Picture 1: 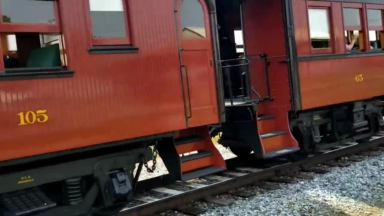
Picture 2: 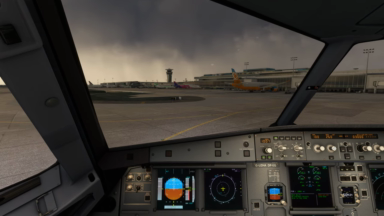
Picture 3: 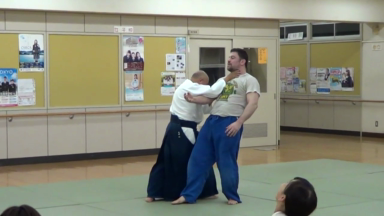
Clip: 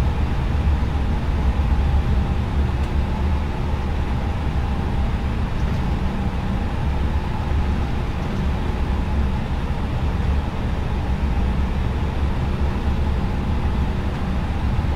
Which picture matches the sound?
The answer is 2